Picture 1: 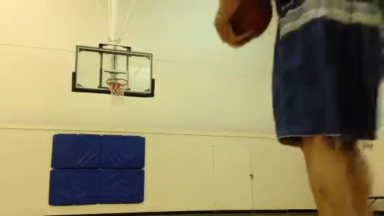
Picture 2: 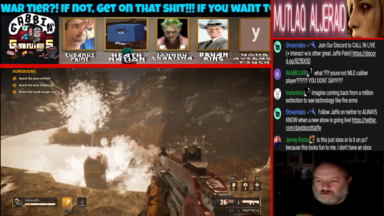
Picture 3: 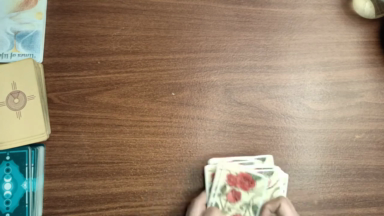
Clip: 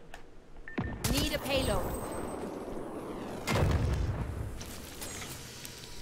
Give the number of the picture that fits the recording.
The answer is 2